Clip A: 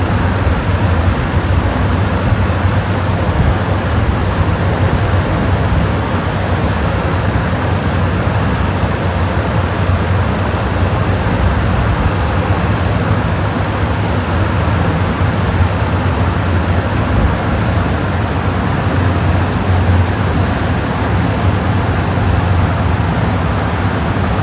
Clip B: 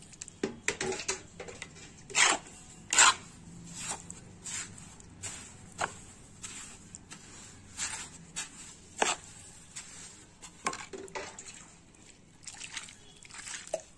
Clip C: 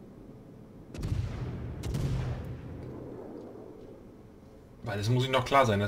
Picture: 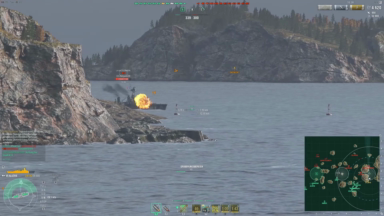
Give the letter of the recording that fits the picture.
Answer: C